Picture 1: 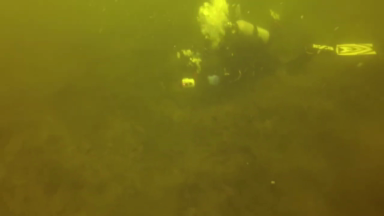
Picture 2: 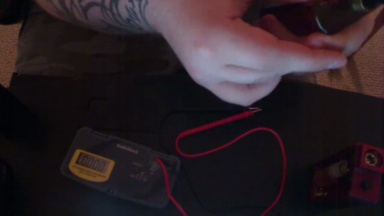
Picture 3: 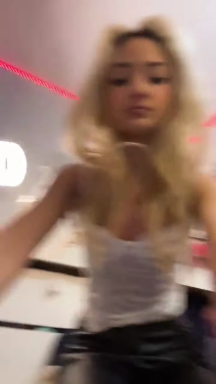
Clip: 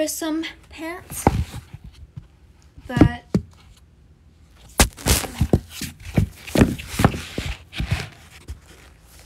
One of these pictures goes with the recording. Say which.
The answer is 3